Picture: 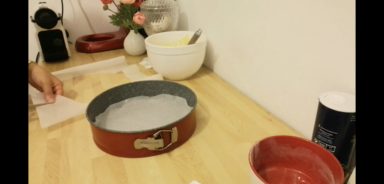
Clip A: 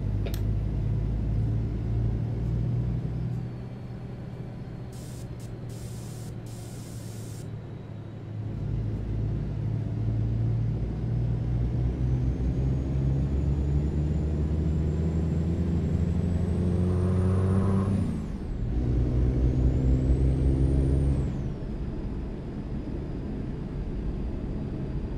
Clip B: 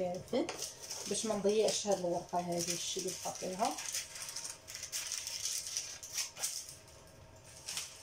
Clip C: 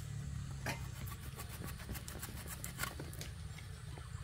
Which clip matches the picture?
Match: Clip B